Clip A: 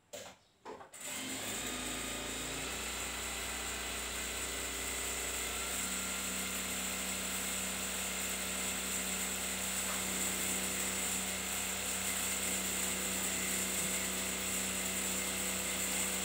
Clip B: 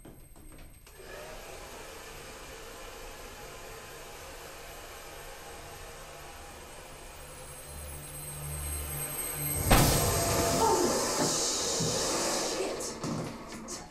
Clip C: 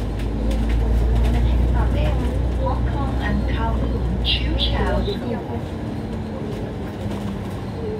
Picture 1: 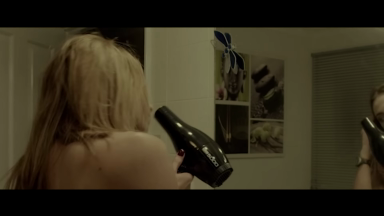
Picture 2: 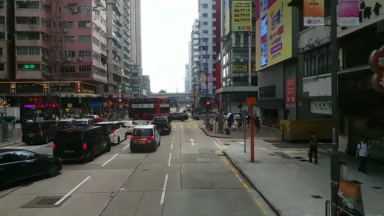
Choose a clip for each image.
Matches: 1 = B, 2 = C